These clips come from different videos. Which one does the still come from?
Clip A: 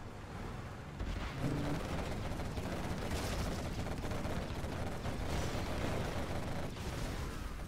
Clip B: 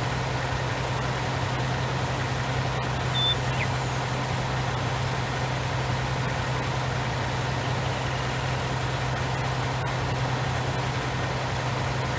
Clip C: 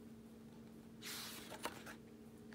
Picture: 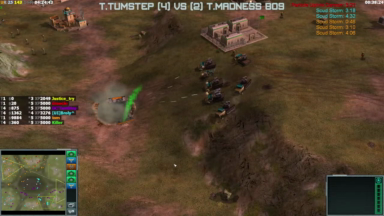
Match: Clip A